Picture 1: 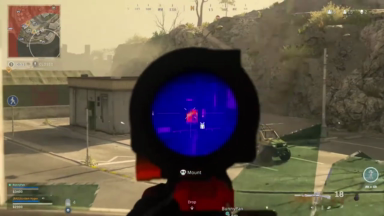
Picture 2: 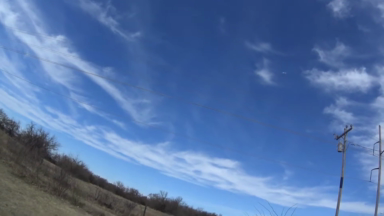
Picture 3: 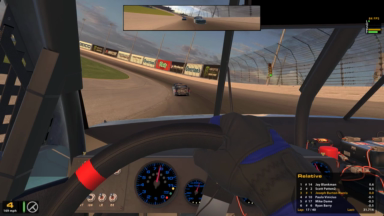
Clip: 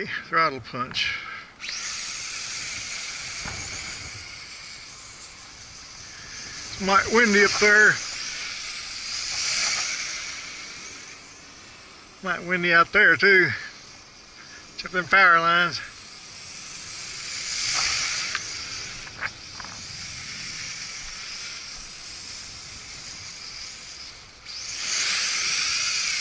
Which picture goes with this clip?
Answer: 2